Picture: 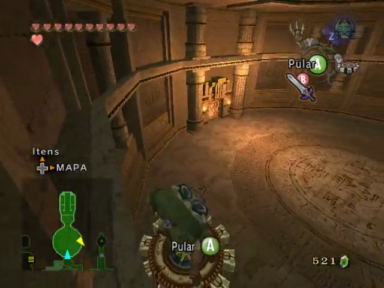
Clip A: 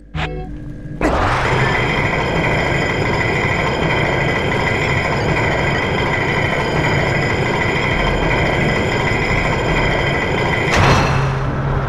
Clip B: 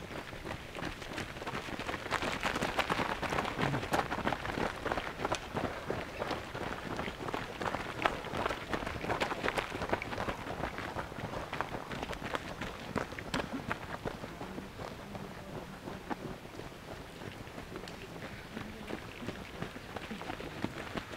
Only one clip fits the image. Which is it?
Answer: A